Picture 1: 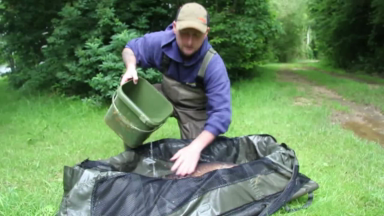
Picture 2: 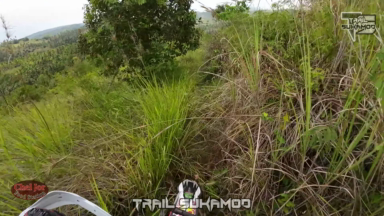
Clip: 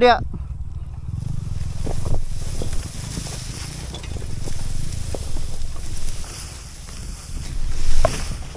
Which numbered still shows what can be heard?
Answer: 2